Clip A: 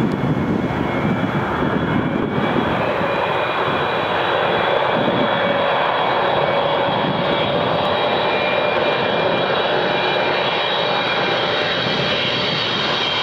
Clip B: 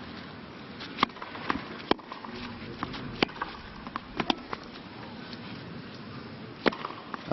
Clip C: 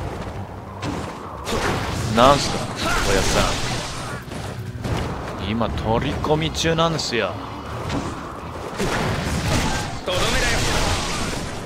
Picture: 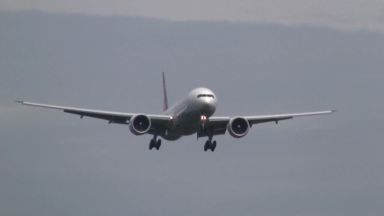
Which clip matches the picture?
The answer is A